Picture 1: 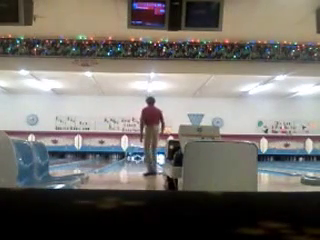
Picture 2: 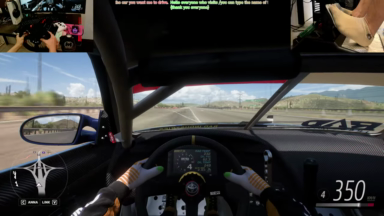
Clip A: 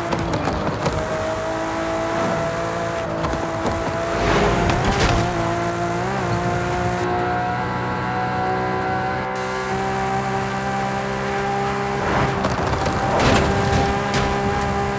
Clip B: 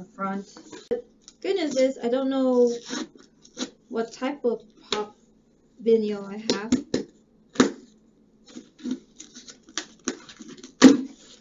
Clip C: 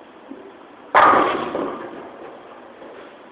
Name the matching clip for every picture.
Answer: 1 C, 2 A